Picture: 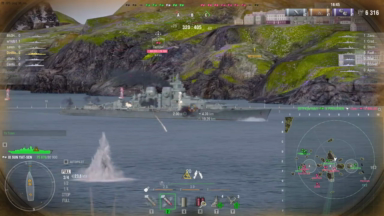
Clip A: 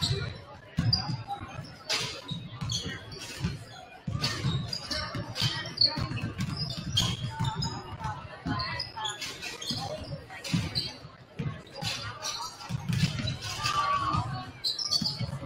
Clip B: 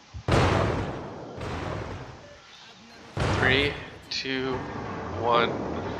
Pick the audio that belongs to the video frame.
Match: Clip B